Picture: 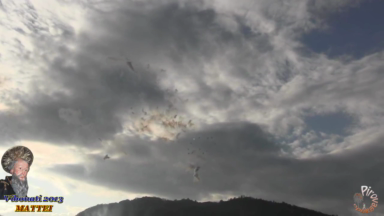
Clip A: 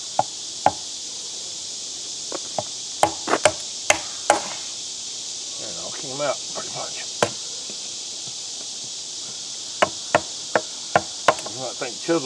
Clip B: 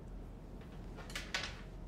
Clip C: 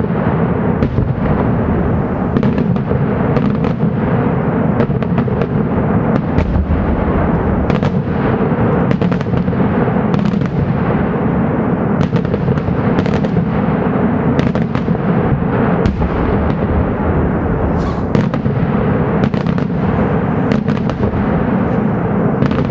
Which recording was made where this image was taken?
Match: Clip C